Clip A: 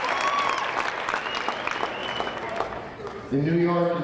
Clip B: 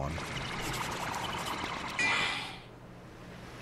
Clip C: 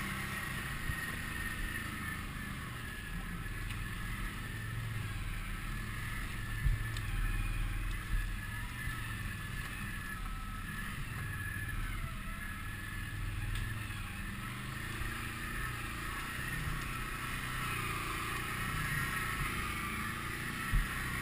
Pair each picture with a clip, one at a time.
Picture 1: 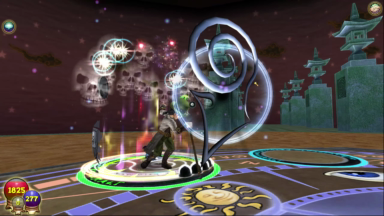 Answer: B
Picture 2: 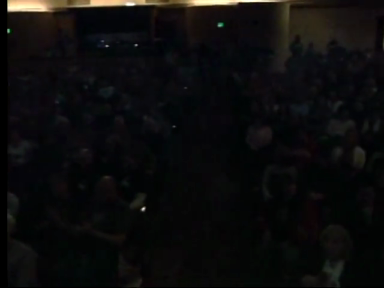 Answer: A